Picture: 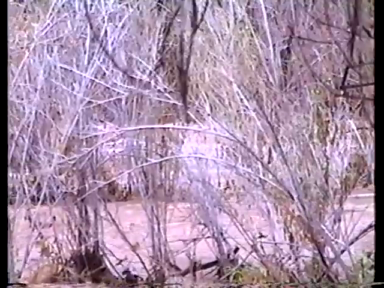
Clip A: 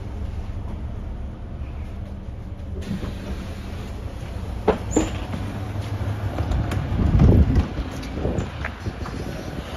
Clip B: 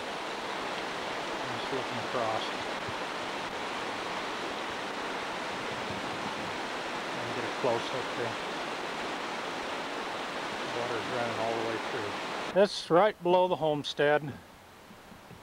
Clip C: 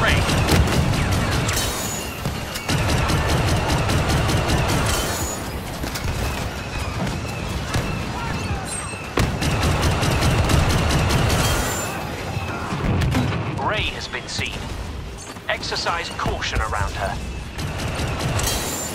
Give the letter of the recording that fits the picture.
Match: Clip B